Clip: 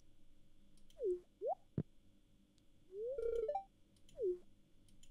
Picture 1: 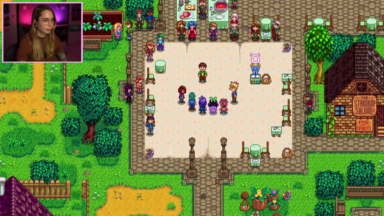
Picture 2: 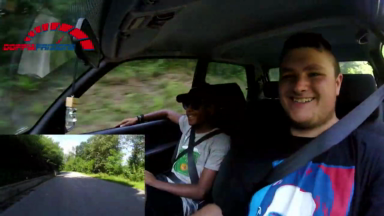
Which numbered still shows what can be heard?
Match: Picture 1